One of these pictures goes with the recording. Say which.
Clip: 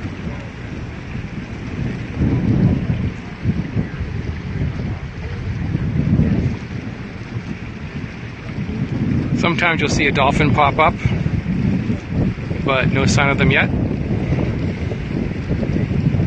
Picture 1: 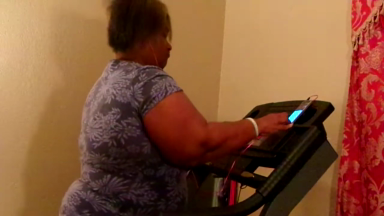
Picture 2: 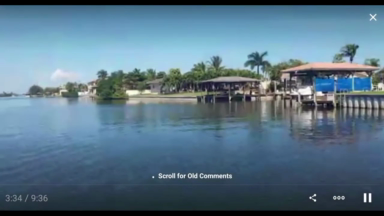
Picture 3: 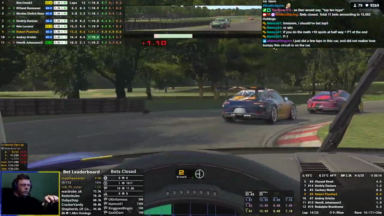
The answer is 2